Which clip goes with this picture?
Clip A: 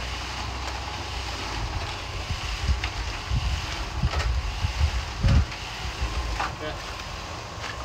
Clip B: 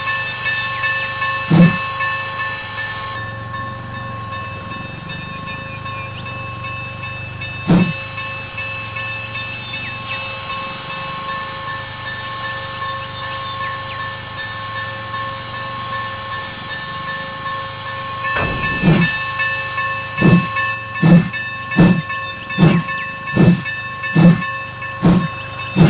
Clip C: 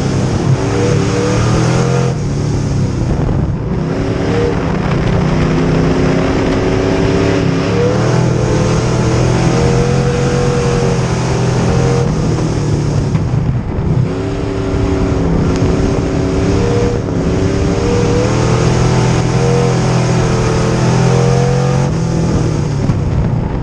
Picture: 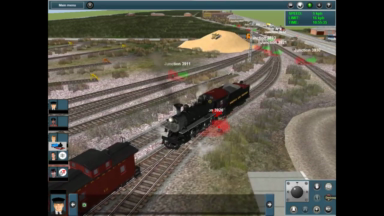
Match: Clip B